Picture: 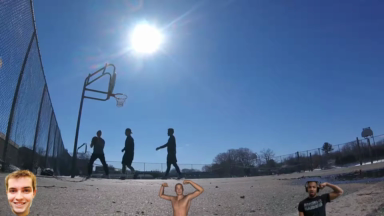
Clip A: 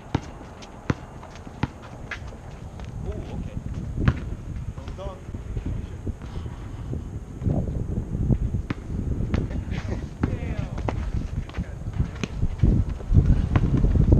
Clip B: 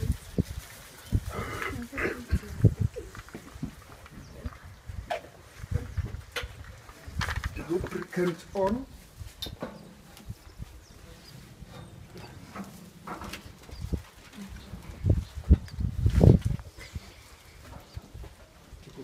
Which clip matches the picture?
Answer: A